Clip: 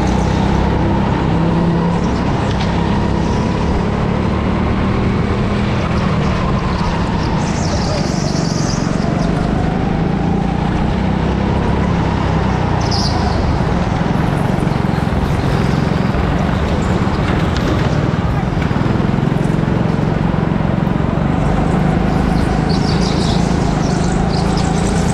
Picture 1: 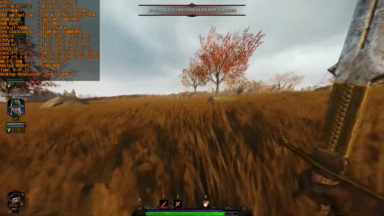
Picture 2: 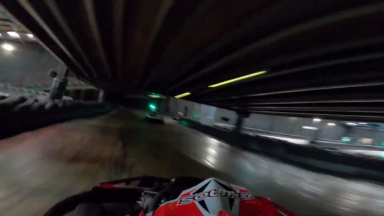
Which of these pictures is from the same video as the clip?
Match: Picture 2